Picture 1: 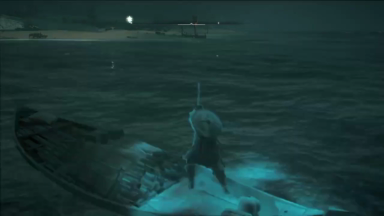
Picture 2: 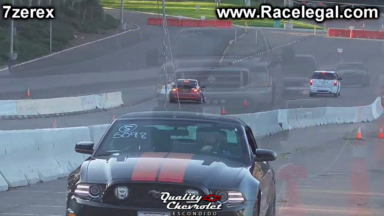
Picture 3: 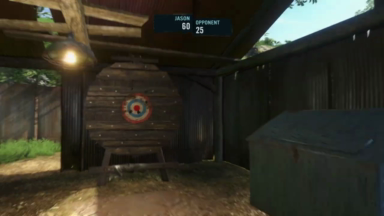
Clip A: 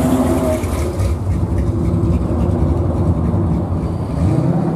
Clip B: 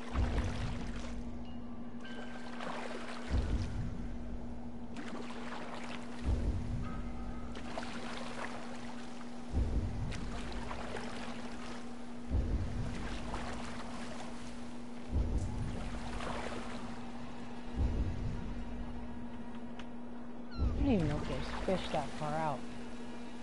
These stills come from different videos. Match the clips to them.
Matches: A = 2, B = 1